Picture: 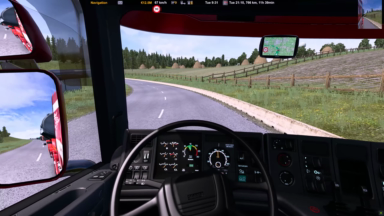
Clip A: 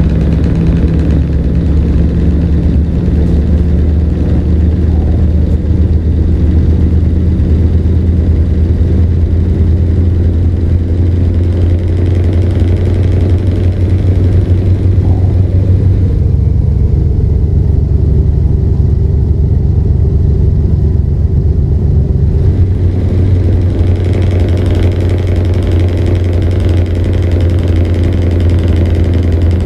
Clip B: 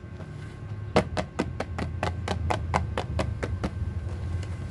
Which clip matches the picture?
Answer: A